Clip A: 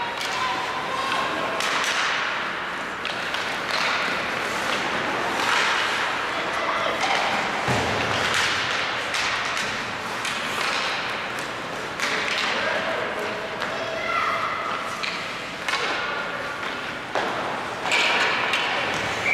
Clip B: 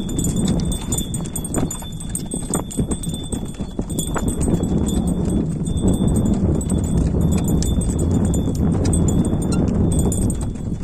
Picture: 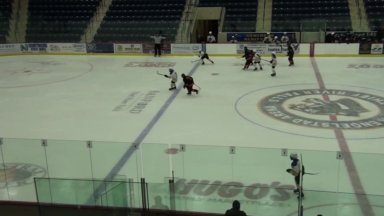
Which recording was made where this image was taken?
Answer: A